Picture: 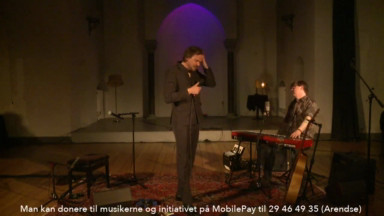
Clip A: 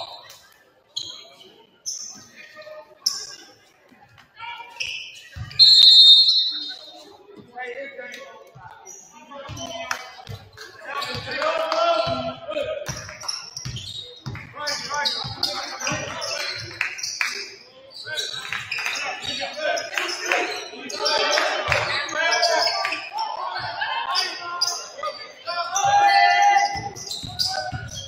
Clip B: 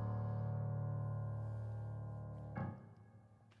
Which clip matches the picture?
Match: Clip B